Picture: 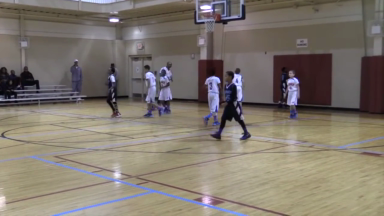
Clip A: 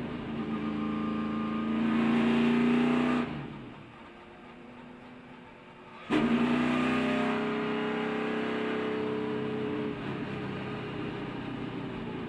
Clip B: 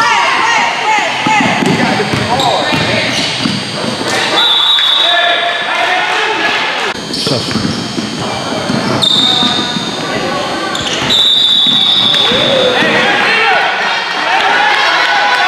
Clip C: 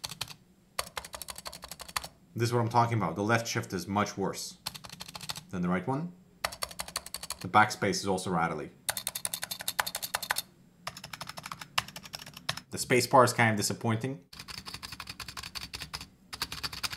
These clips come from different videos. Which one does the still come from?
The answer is B